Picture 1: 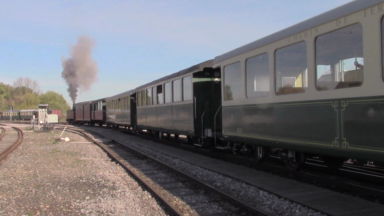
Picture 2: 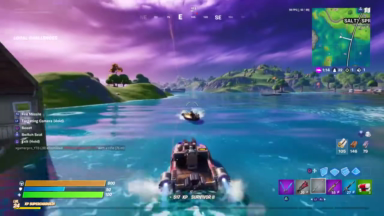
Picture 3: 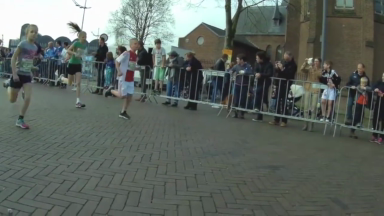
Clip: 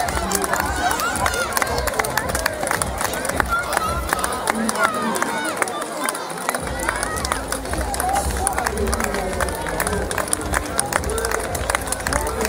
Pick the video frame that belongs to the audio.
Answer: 3